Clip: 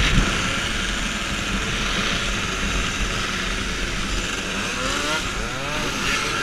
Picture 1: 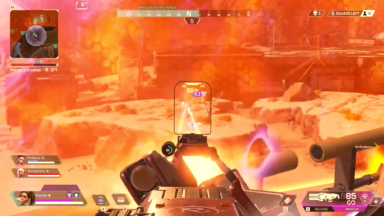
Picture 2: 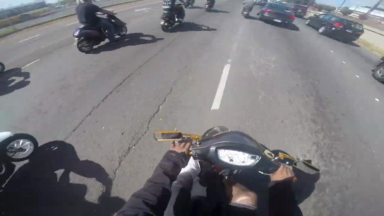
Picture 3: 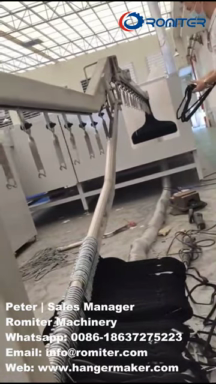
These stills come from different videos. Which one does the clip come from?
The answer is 2